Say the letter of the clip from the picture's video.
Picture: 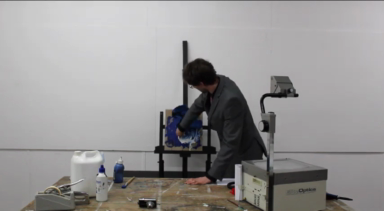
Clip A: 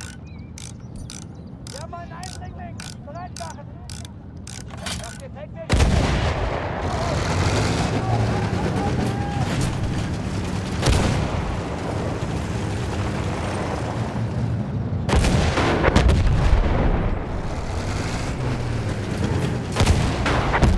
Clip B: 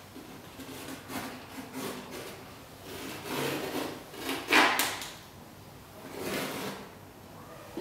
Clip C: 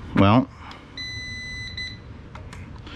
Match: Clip B